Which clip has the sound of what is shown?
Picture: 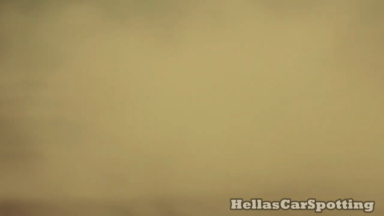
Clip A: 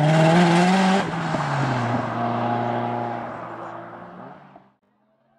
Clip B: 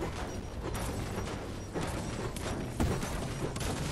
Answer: A